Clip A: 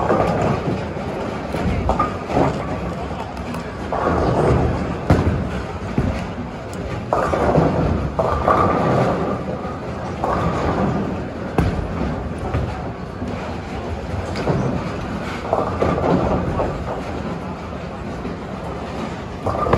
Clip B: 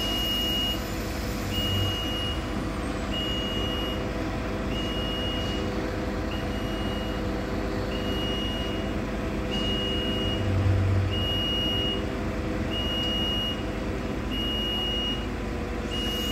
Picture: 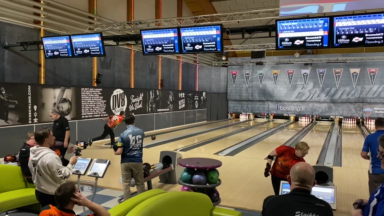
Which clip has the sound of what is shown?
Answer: A